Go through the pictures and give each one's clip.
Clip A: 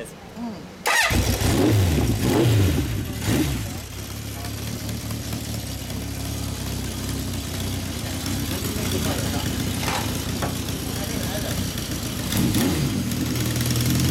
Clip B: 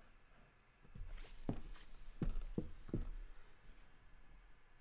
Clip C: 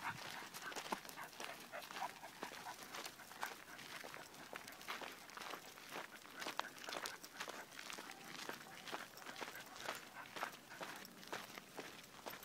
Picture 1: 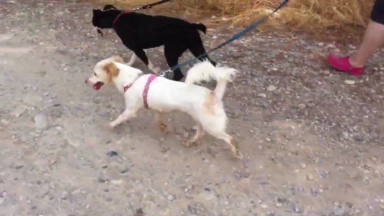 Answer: C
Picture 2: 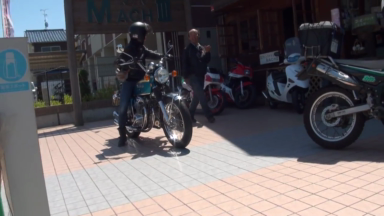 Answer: A